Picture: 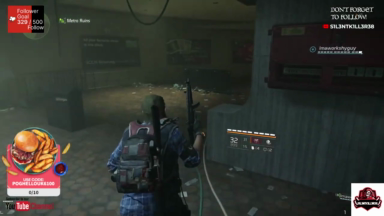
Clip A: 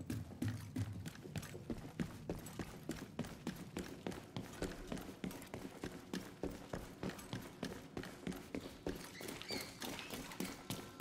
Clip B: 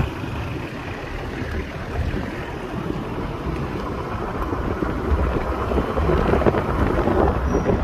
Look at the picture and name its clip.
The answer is A